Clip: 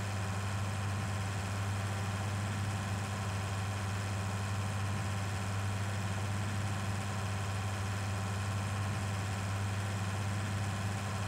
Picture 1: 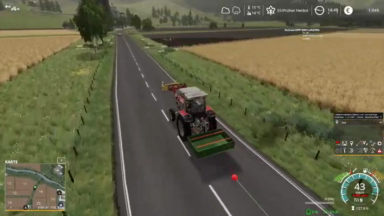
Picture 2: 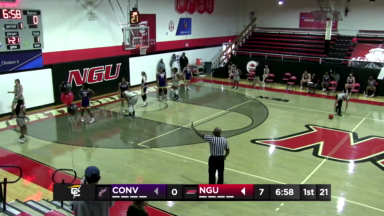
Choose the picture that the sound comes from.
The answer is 1